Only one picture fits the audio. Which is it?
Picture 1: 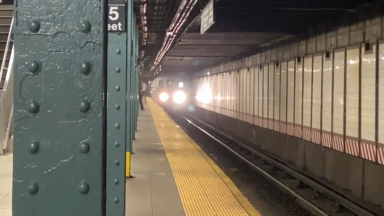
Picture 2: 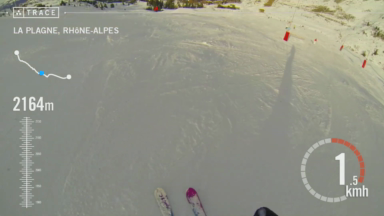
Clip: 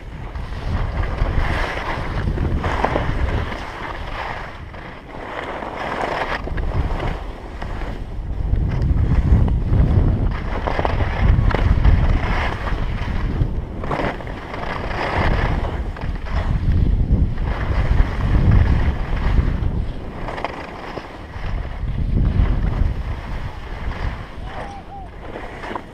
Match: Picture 2